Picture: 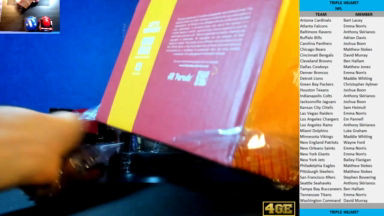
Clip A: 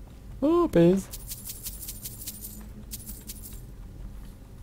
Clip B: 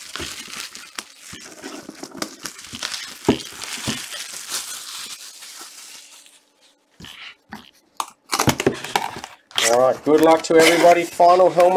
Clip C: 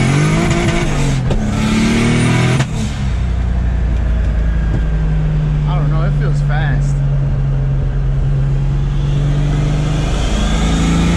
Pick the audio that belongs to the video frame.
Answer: B